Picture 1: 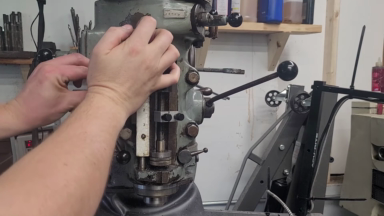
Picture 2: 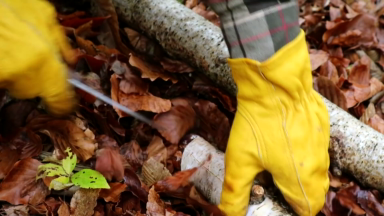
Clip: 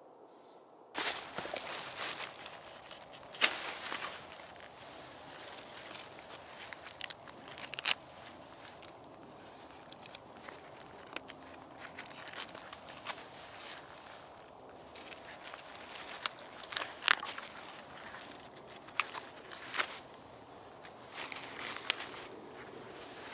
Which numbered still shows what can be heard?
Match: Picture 2